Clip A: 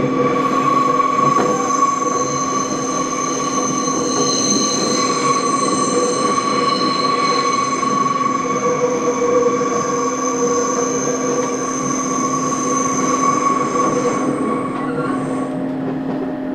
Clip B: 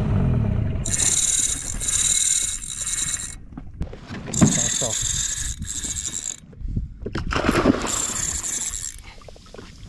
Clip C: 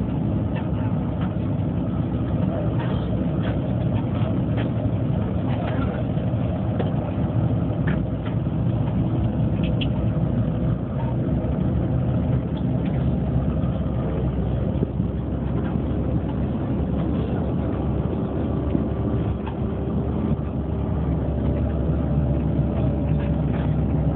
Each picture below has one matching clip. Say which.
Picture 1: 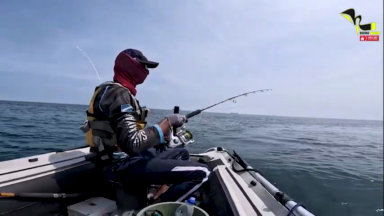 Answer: B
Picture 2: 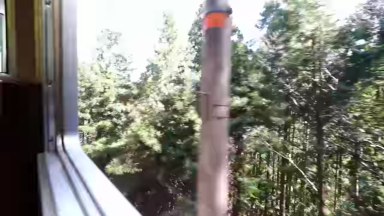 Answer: A